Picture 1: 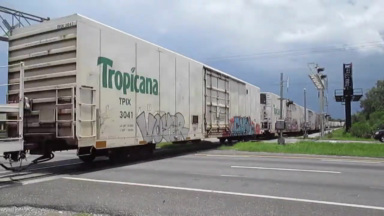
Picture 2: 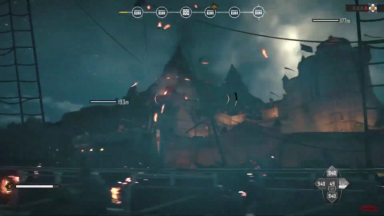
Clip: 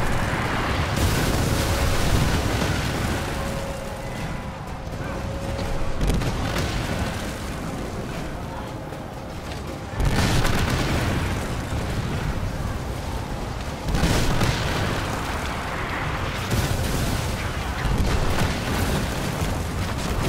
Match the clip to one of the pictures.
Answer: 2